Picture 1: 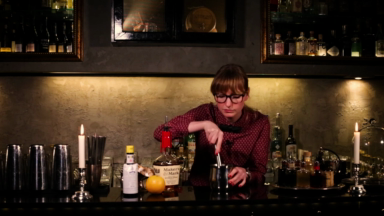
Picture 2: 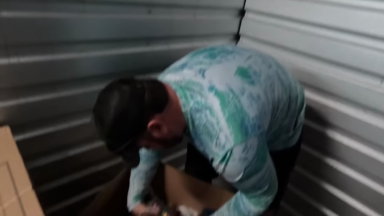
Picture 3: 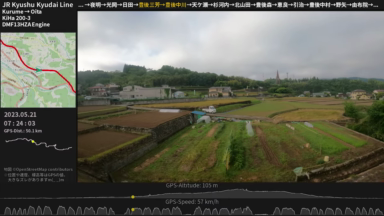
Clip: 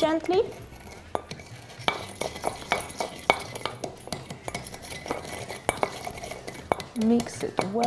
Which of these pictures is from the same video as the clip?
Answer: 1